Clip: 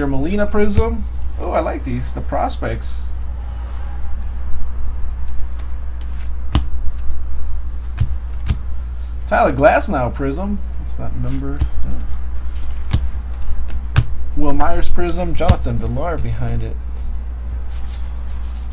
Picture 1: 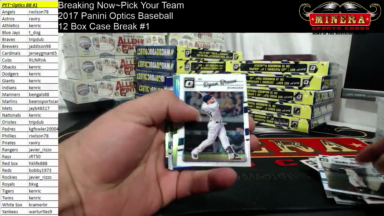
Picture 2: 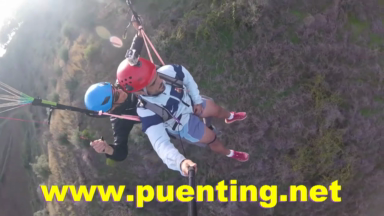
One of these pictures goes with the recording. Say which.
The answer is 1